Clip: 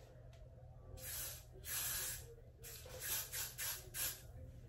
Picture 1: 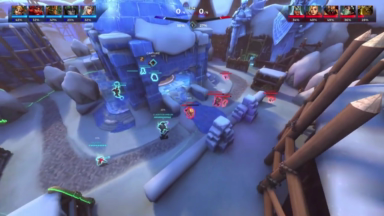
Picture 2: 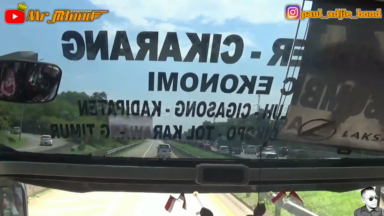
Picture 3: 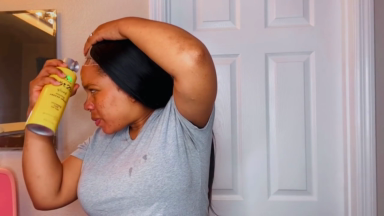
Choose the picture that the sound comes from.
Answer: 3